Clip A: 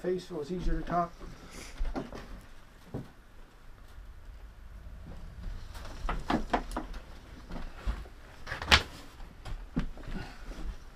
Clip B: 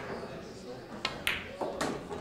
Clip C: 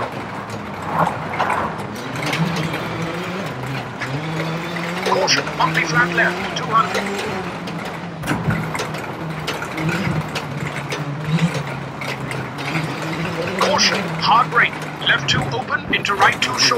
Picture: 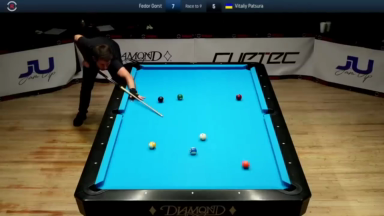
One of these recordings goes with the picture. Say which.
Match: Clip B